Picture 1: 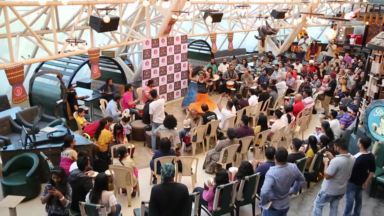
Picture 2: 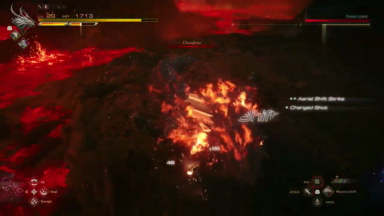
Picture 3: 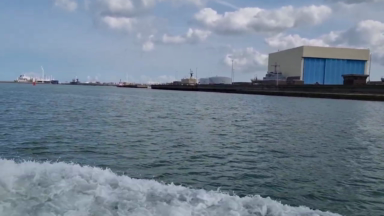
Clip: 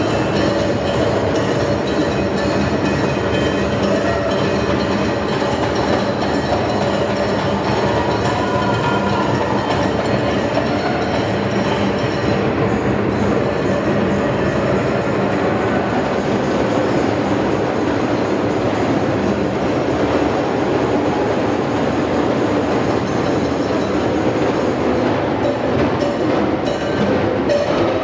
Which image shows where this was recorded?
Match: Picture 1